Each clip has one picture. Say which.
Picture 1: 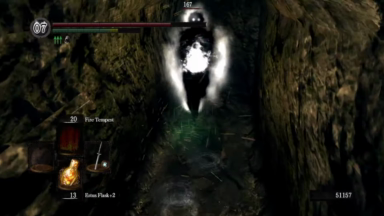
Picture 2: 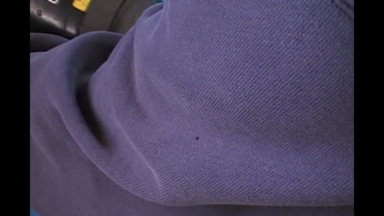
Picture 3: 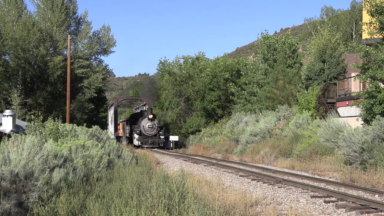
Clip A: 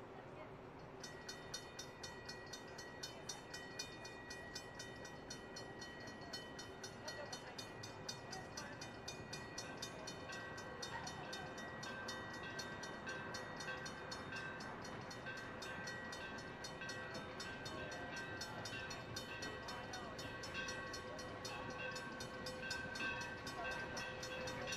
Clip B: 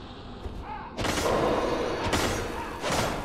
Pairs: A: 3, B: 1